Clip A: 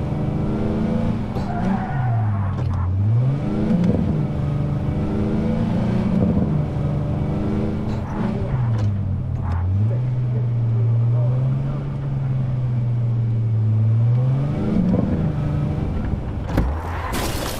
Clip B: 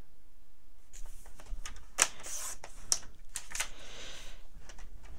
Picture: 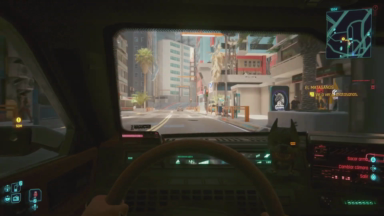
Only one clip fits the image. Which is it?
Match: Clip A